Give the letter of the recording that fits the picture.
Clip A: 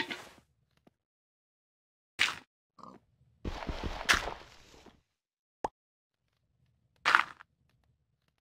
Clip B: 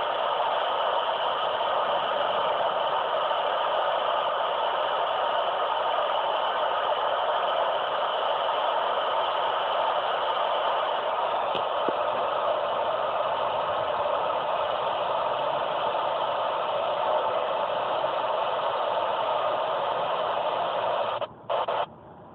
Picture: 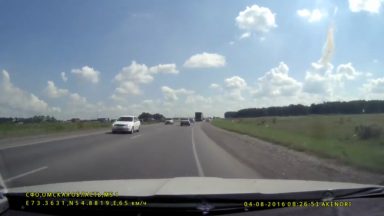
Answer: B